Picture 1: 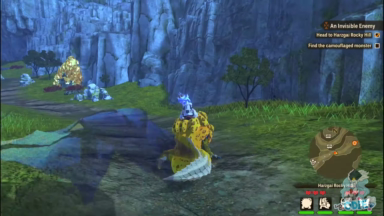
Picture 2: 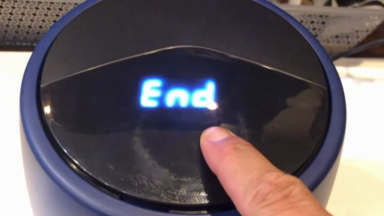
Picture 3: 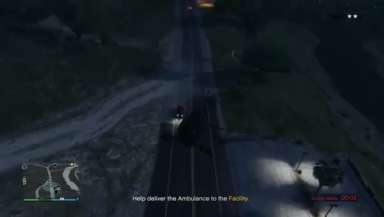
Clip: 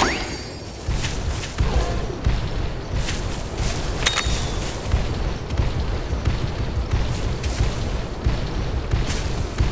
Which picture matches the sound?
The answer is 1